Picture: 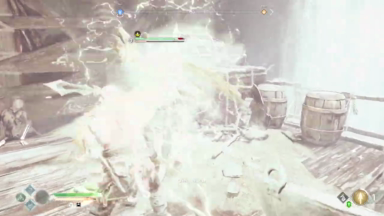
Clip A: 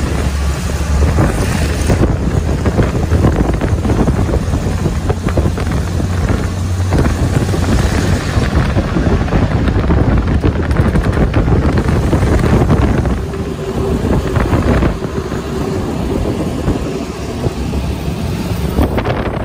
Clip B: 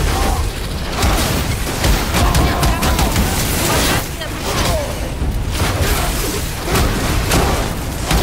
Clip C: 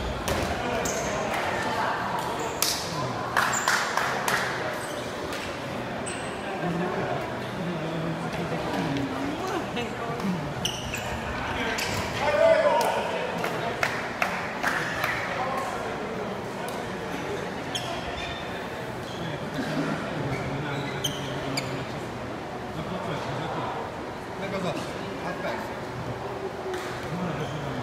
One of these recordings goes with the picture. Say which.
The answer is B